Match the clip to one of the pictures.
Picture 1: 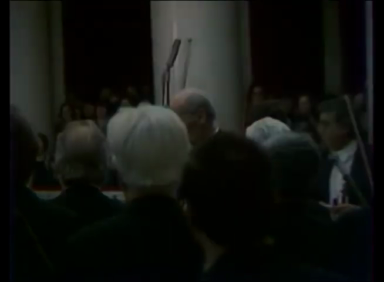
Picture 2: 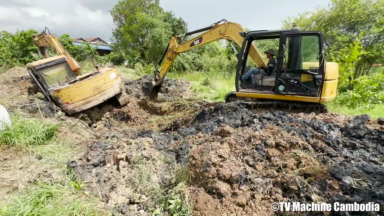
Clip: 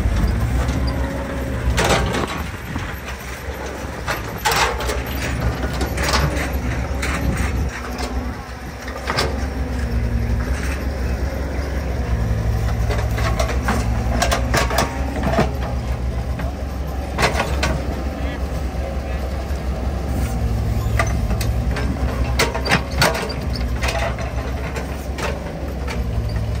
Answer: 2